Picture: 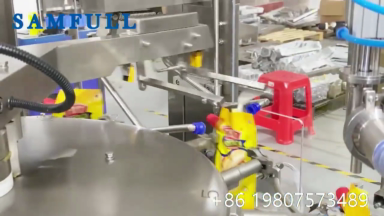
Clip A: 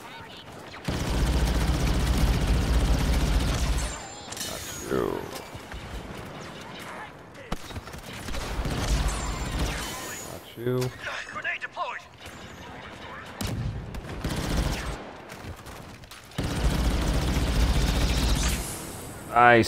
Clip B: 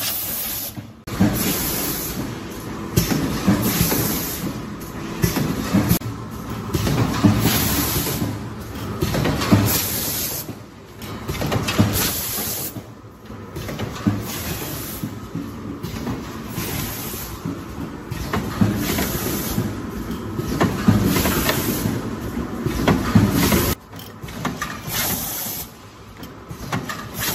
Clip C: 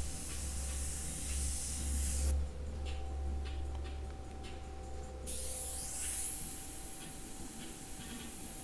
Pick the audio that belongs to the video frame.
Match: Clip B